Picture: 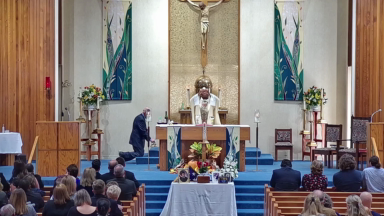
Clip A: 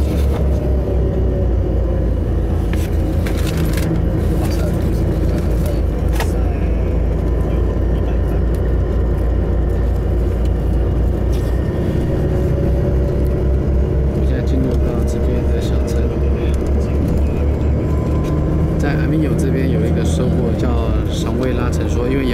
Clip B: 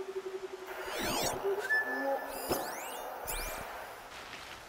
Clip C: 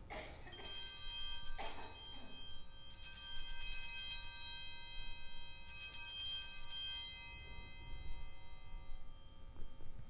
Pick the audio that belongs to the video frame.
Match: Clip C